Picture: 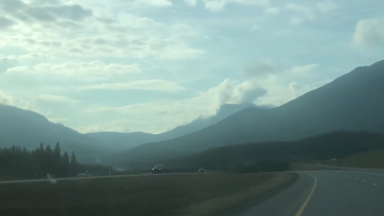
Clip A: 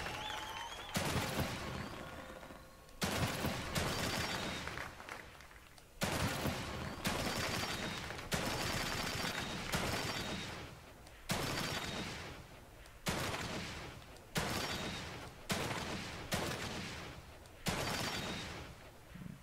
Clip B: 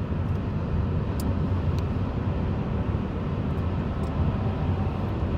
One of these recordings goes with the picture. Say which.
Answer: B